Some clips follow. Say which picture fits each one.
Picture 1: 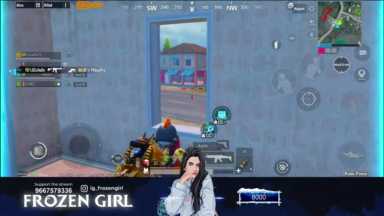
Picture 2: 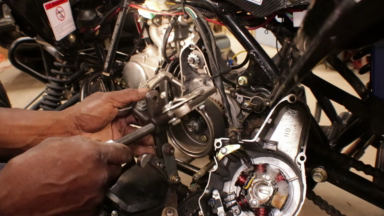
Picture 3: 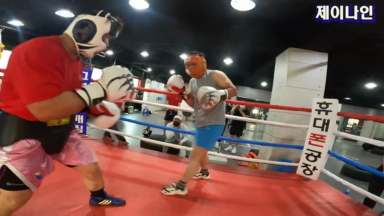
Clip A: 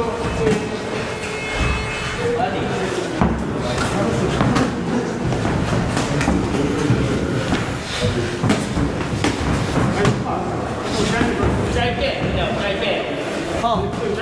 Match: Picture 3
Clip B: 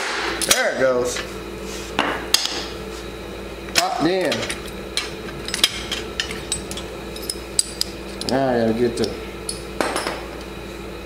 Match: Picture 2